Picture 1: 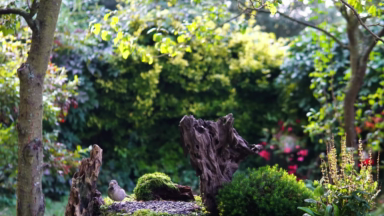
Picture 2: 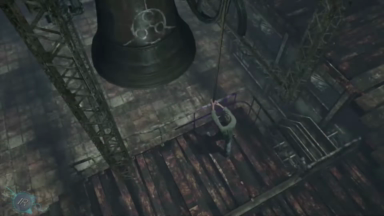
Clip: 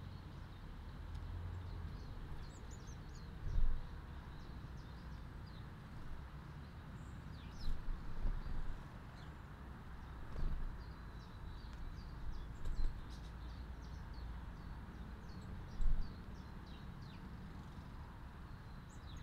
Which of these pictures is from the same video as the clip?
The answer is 1